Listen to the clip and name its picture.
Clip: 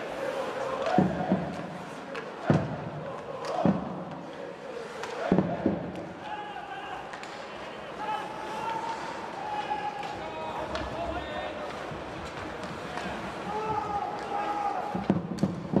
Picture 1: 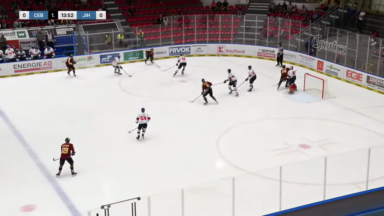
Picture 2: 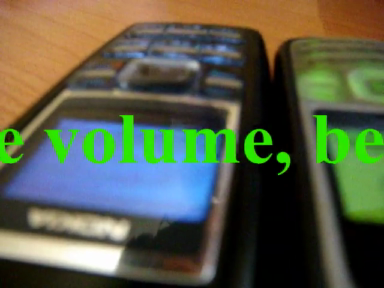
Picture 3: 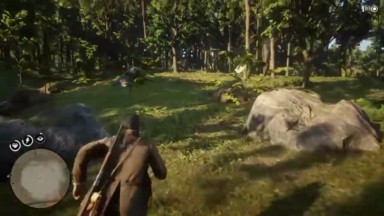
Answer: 1